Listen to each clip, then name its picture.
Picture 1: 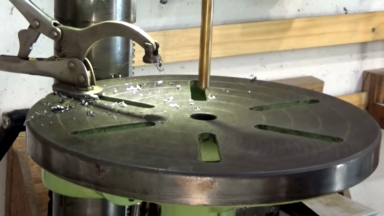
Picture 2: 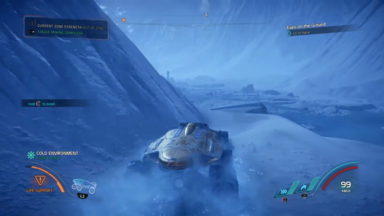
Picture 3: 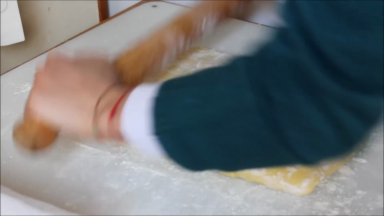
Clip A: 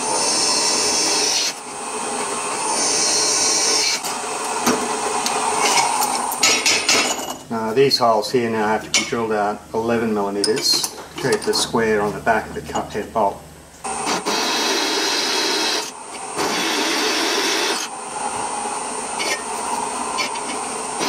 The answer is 1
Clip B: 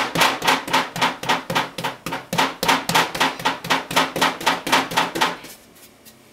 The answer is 3